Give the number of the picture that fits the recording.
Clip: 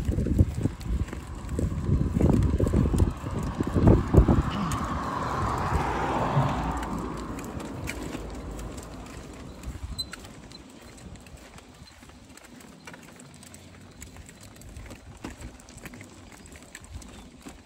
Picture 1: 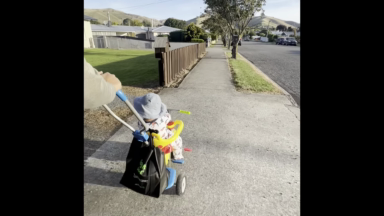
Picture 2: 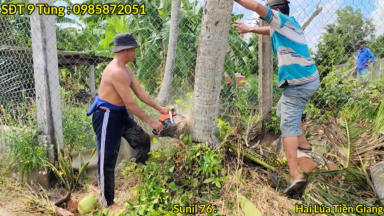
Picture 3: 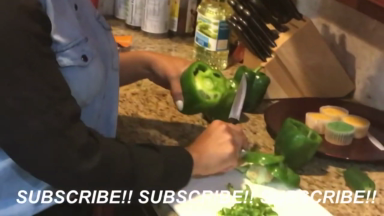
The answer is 1